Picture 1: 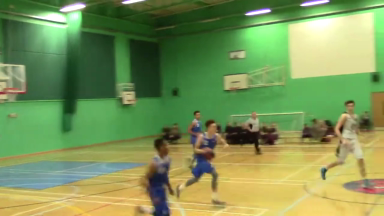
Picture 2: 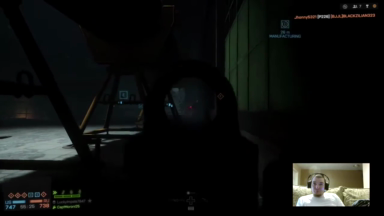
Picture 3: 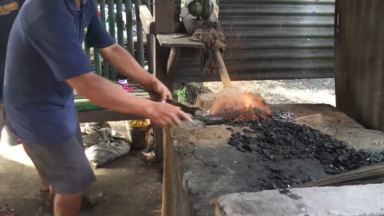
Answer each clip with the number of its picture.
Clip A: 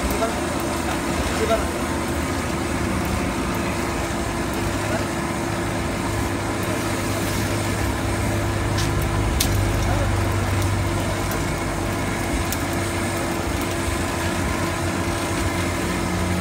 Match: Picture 3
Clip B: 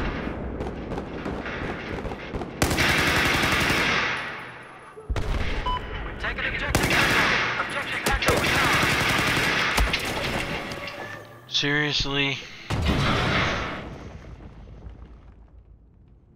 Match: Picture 2